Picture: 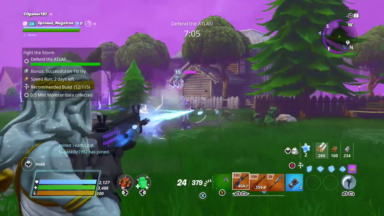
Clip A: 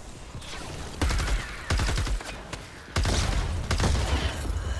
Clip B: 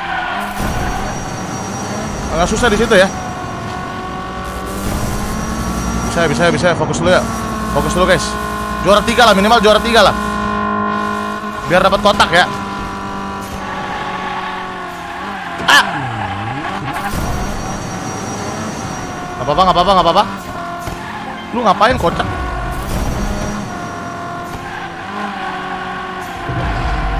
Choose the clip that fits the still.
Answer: A